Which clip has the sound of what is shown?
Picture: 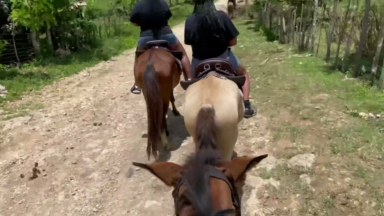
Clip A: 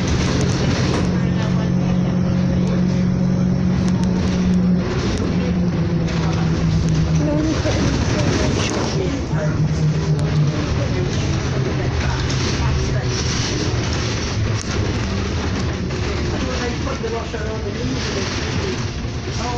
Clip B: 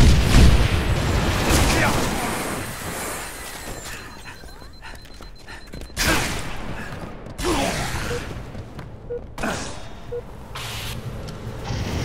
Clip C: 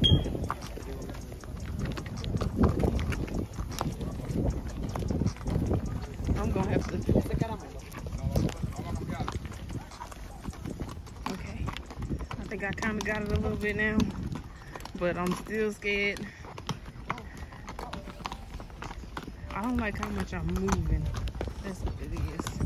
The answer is C